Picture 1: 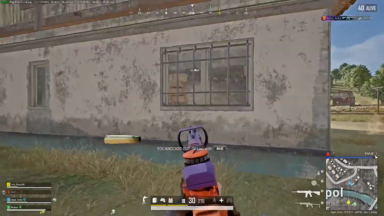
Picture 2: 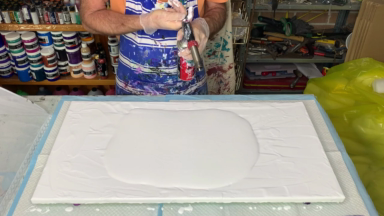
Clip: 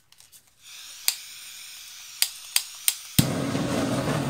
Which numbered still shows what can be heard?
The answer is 2